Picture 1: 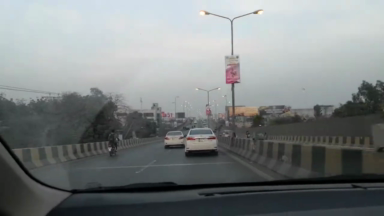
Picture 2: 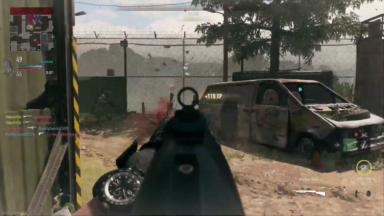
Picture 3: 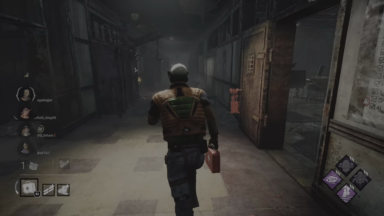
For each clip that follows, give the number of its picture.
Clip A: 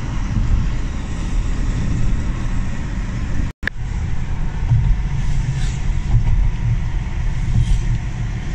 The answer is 1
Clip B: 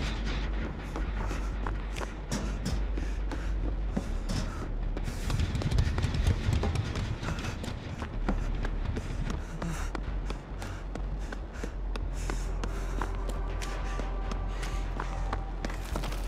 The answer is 3